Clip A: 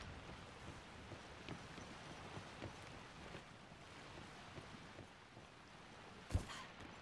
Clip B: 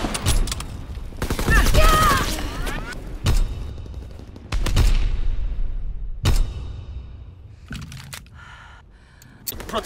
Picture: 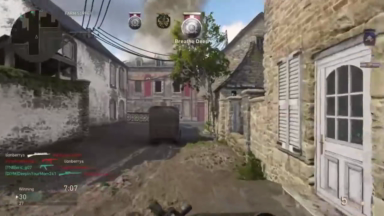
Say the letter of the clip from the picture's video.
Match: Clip B